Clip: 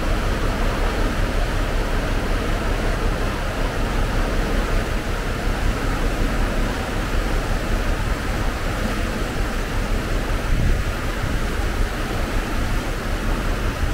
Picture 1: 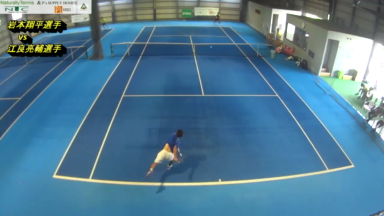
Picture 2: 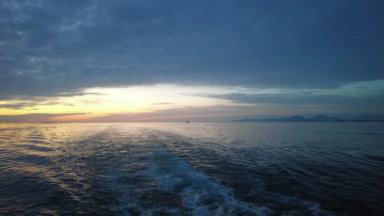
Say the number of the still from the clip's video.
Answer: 2